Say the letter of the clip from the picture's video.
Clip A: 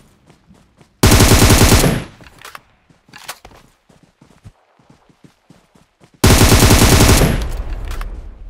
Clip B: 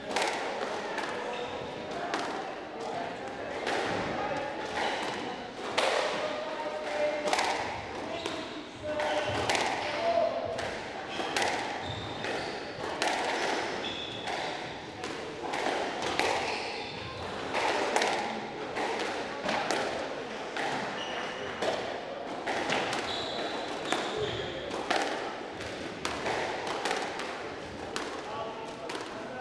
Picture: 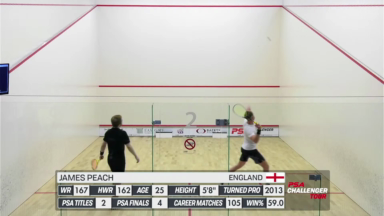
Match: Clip B